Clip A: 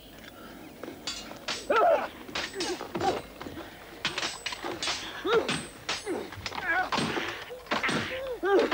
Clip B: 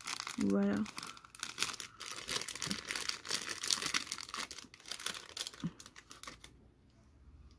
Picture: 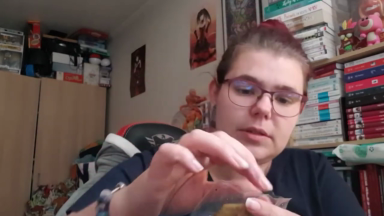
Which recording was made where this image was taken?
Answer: B